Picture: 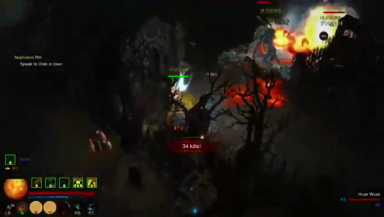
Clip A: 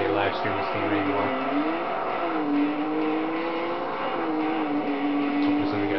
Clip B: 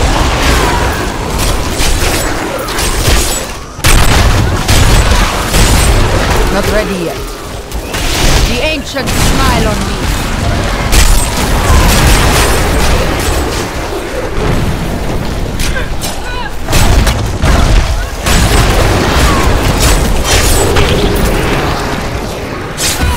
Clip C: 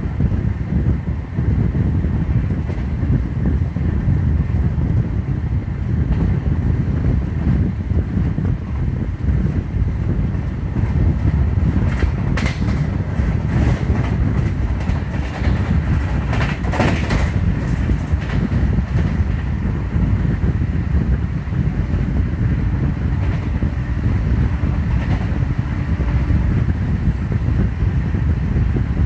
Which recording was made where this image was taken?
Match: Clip B